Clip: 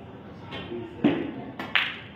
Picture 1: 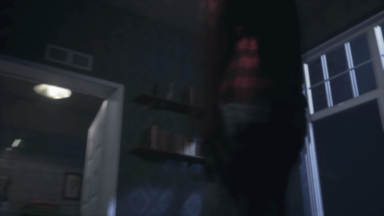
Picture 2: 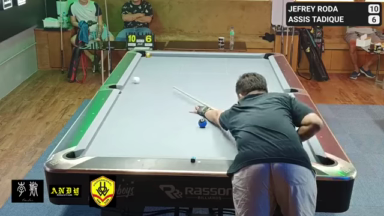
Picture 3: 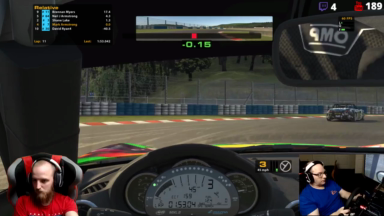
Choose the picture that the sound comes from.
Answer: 2